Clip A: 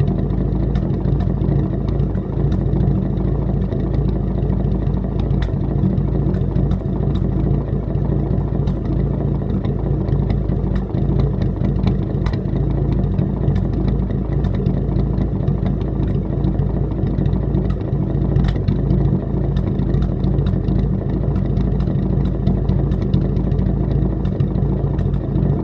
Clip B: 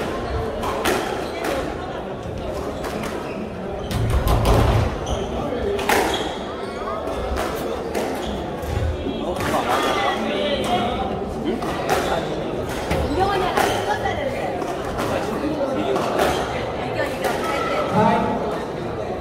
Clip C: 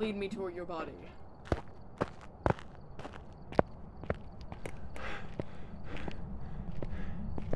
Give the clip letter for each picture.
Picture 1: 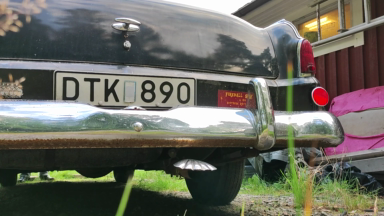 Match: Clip A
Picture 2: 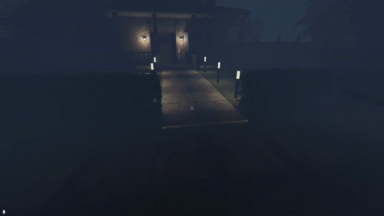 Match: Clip C